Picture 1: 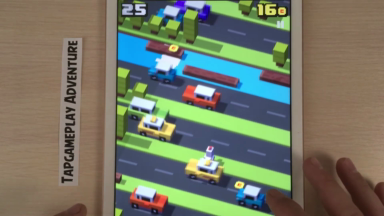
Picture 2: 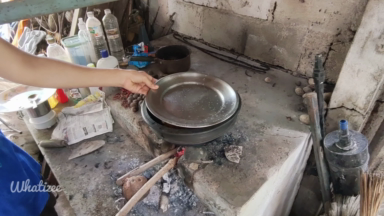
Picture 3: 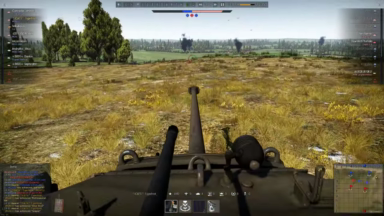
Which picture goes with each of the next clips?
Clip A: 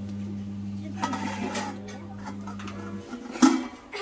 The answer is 2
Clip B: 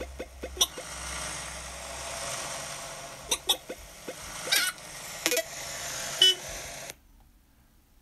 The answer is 1